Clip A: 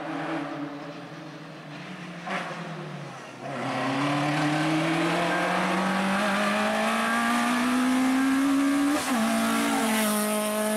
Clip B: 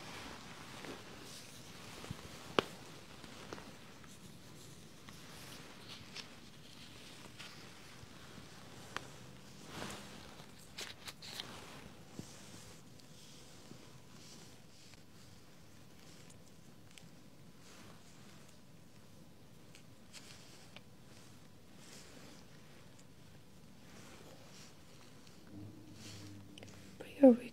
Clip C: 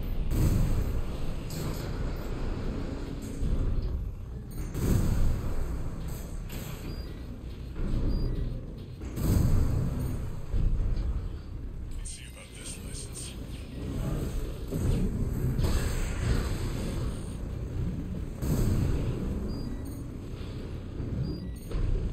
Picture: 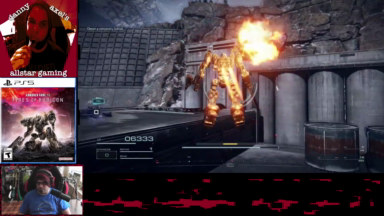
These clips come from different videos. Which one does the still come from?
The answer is C